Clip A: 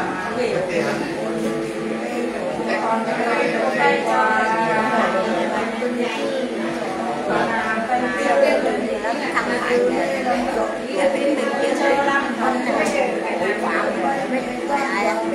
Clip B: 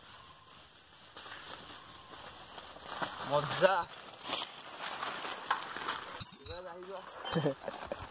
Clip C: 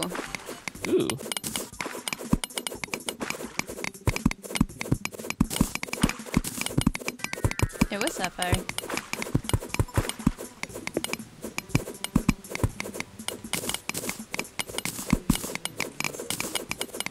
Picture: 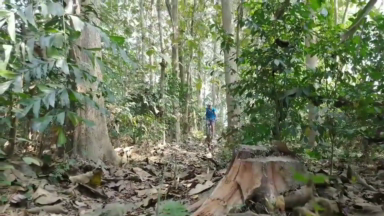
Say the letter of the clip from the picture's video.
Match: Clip B